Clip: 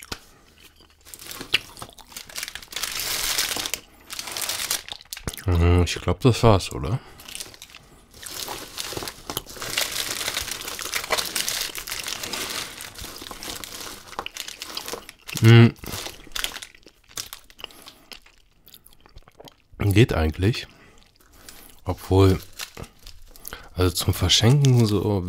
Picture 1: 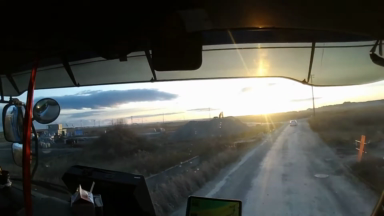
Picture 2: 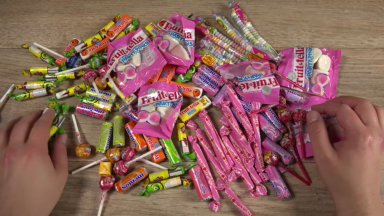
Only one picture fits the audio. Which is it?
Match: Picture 2